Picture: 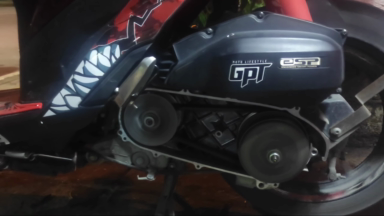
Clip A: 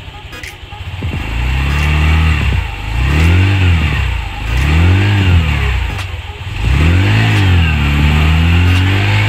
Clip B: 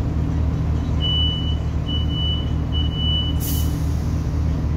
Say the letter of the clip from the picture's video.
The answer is A